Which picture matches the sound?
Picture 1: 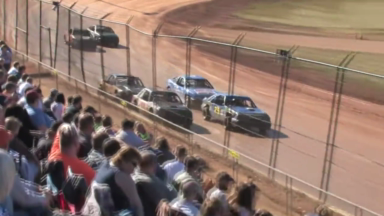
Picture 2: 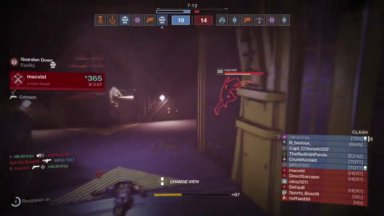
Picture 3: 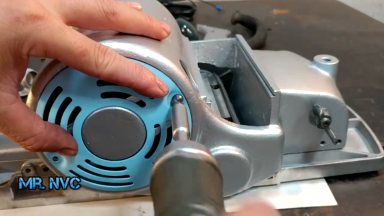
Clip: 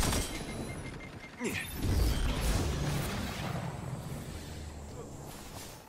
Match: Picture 2